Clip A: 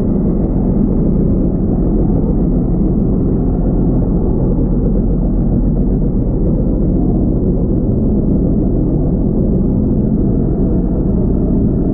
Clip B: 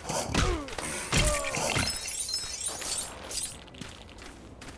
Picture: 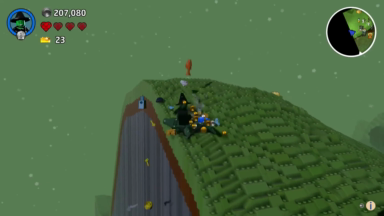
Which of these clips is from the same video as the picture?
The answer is B